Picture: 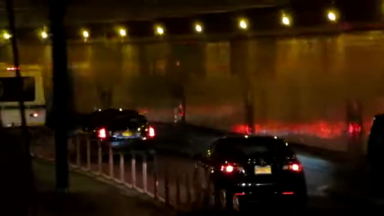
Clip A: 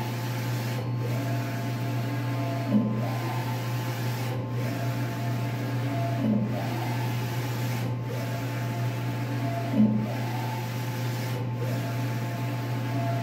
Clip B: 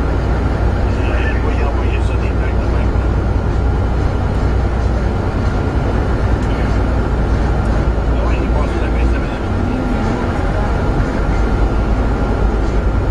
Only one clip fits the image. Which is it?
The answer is B